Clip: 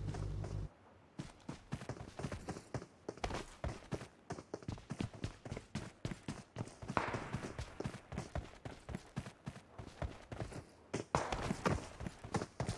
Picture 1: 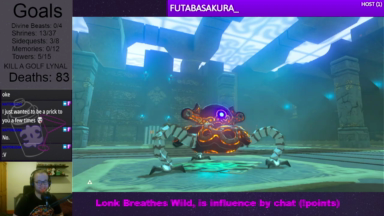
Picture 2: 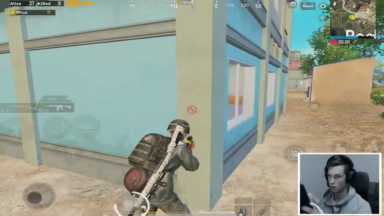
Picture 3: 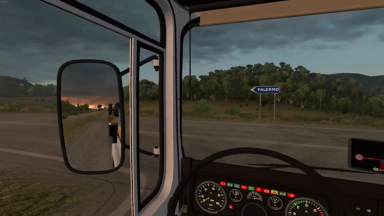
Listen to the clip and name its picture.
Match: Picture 2